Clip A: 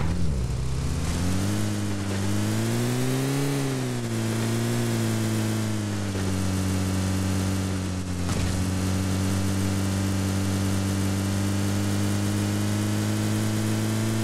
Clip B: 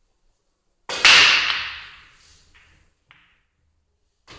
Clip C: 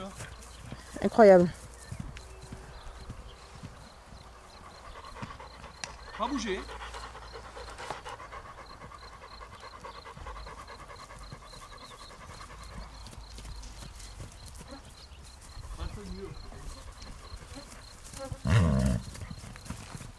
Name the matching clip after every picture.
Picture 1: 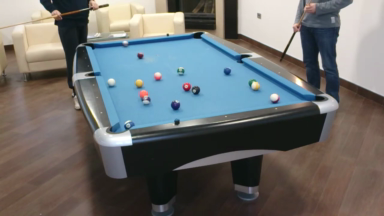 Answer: B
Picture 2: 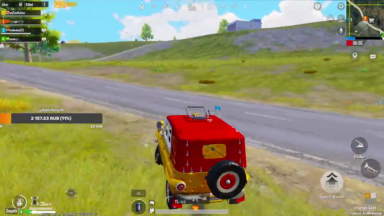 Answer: A